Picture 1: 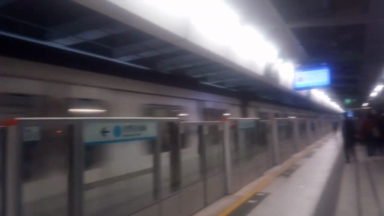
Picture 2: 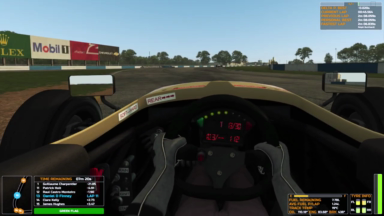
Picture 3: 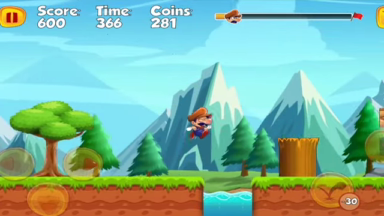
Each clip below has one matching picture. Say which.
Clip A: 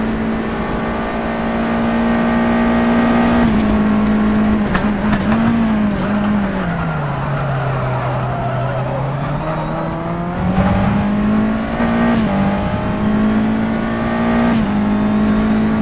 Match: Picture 2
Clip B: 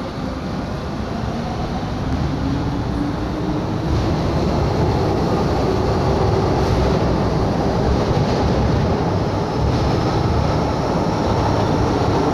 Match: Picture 1